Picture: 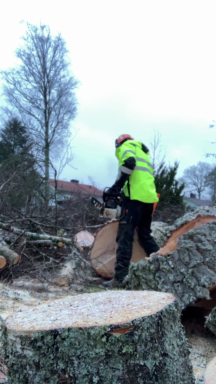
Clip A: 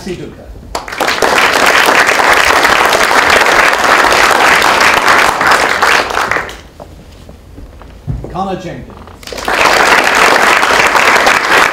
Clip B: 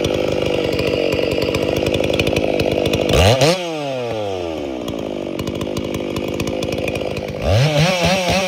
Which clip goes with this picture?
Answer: B